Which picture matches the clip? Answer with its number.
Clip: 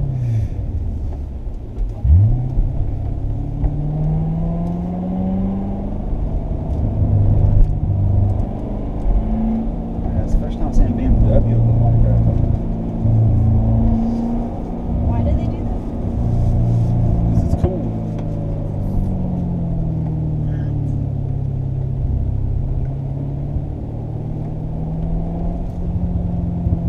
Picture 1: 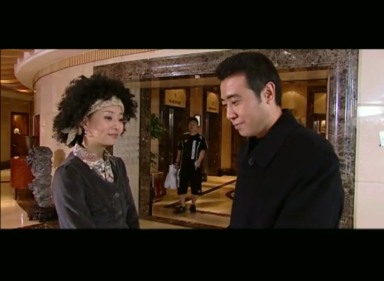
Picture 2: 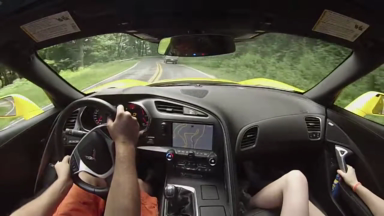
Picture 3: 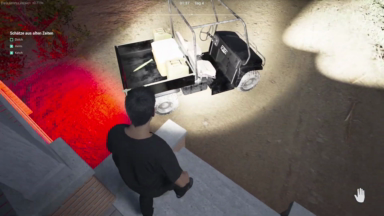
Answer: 2